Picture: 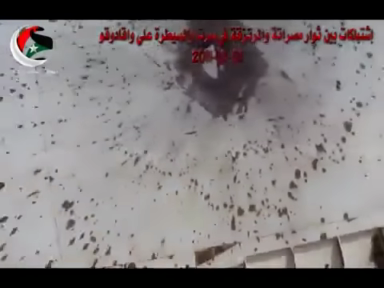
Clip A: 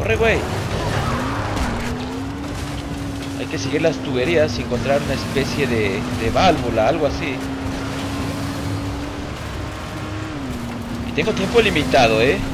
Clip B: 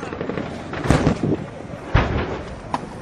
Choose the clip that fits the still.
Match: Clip B